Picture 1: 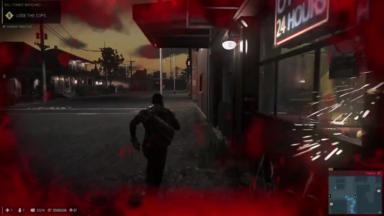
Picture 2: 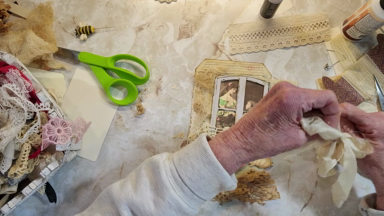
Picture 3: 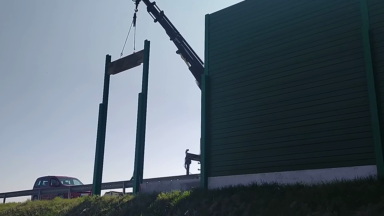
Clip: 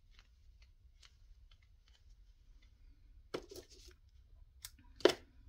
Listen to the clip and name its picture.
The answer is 2